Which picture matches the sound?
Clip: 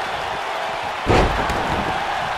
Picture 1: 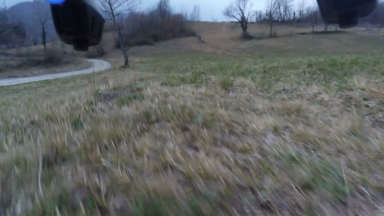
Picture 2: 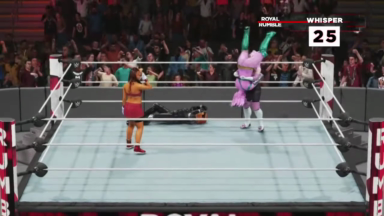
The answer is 2